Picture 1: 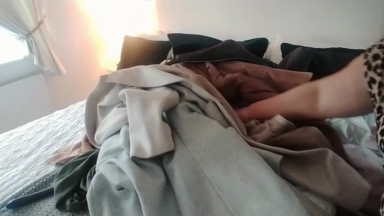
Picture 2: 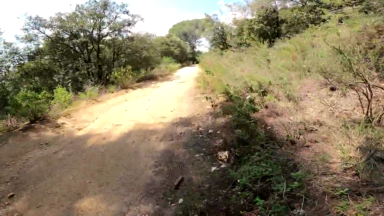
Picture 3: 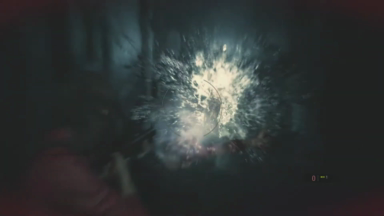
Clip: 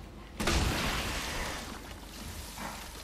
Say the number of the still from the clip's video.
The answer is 3